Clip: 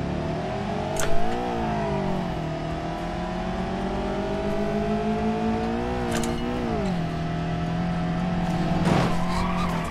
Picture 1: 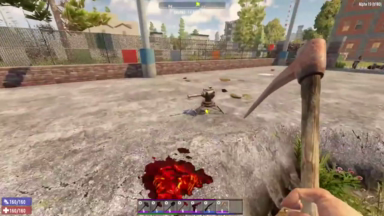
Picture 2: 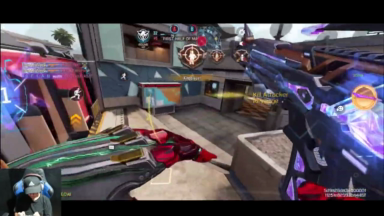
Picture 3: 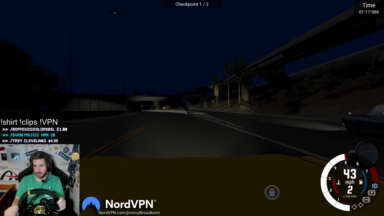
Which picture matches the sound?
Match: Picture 3